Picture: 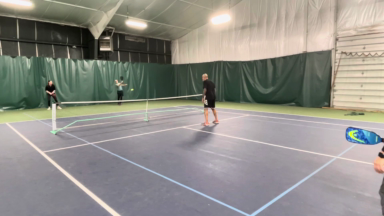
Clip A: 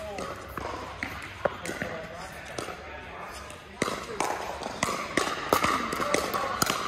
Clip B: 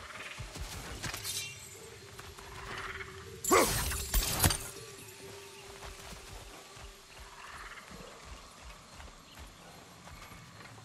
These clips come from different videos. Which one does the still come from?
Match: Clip A